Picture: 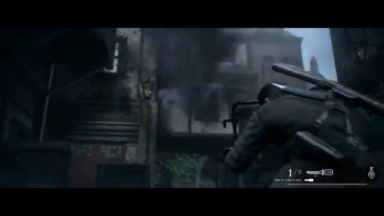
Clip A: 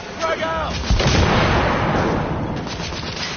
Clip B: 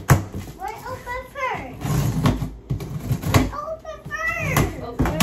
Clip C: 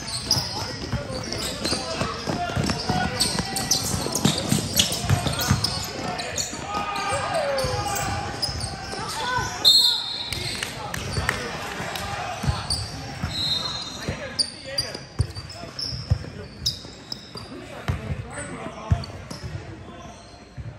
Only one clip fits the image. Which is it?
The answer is A